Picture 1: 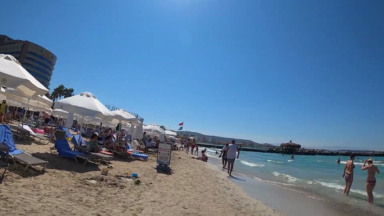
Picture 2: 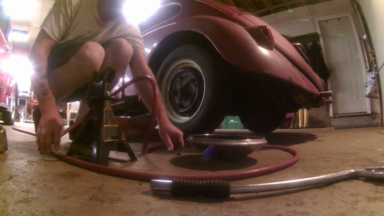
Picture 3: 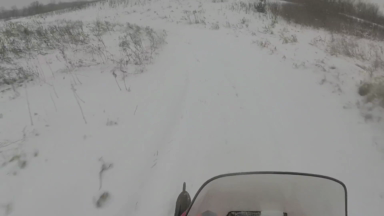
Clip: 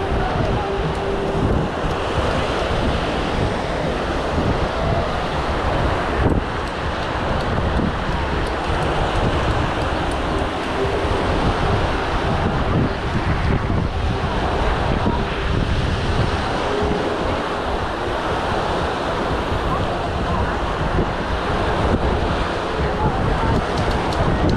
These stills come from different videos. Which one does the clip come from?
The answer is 1